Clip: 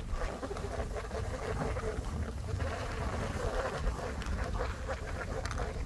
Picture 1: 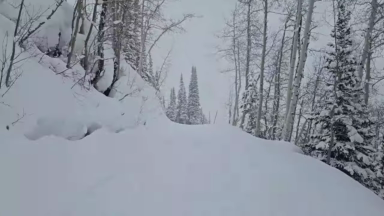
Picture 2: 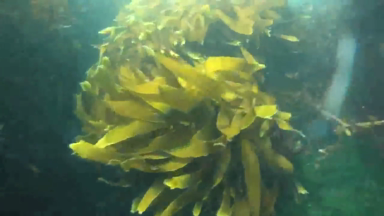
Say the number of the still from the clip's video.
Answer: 1